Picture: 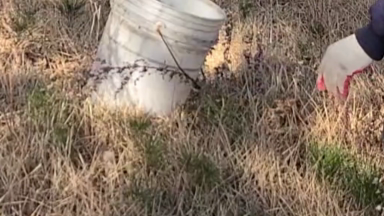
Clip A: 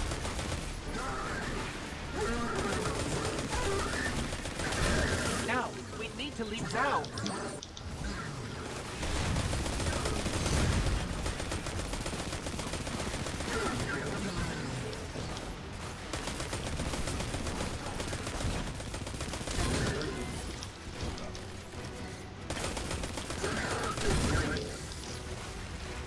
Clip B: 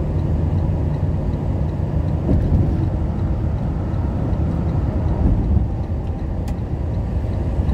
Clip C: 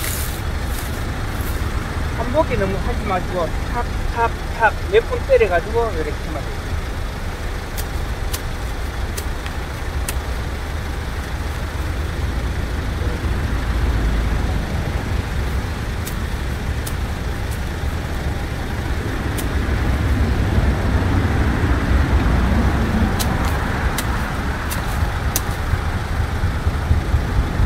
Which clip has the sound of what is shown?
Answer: C